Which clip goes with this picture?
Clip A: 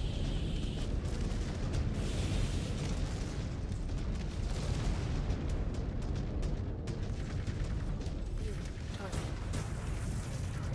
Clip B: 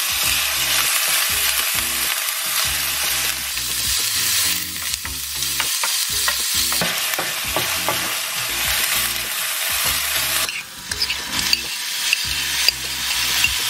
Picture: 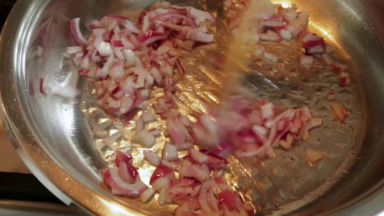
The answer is B